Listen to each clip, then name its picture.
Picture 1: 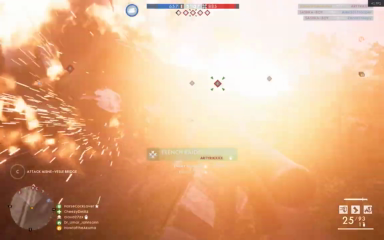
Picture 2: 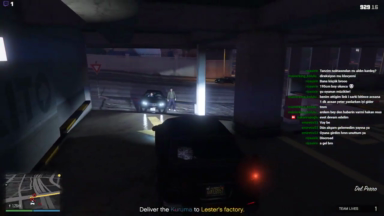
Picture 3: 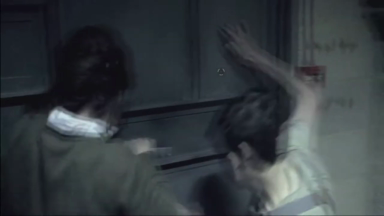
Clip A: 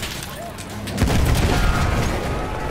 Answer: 1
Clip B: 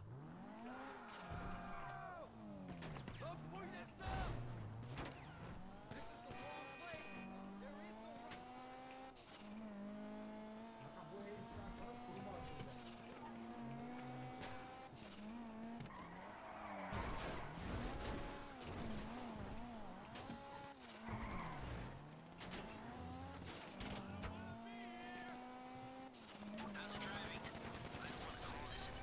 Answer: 2